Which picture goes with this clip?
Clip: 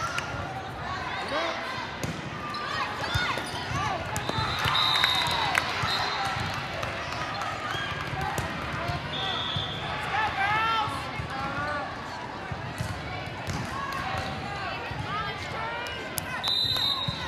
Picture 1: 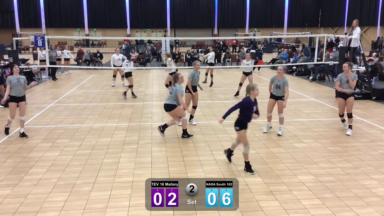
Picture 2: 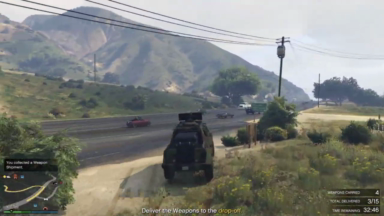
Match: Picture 1